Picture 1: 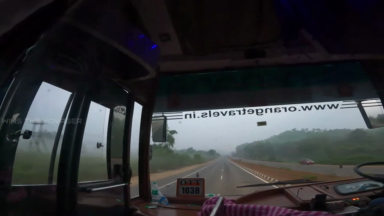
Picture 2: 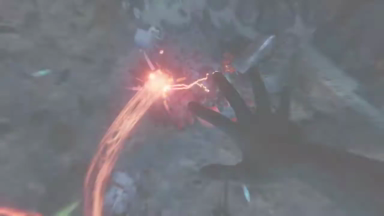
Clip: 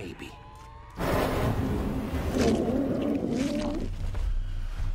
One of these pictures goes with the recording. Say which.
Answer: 2